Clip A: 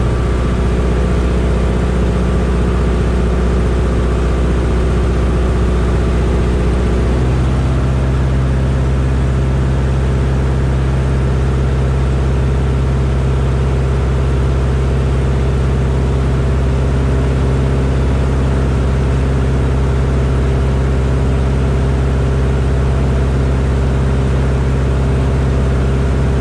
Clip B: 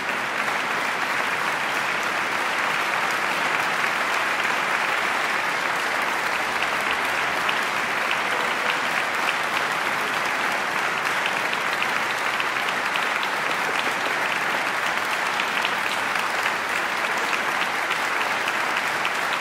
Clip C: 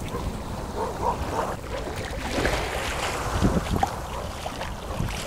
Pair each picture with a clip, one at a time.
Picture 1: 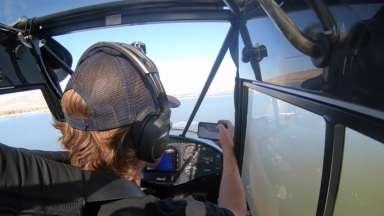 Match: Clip A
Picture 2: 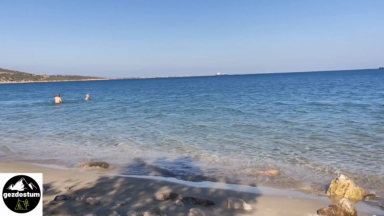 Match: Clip C